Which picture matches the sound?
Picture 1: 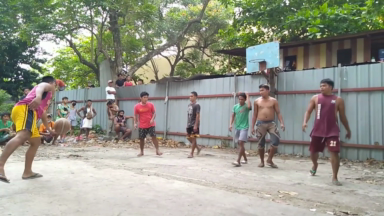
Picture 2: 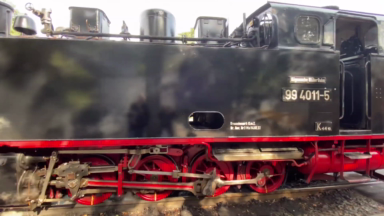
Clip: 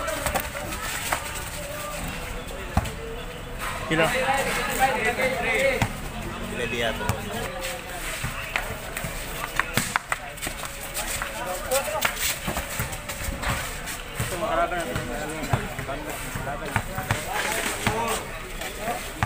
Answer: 1